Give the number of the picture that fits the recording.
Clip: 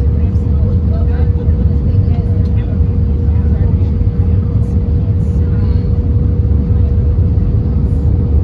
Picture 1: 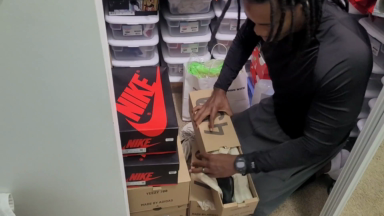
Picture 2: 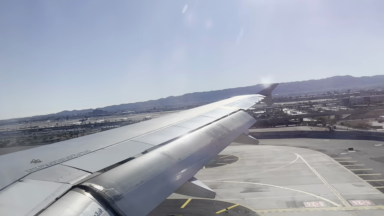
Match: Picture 2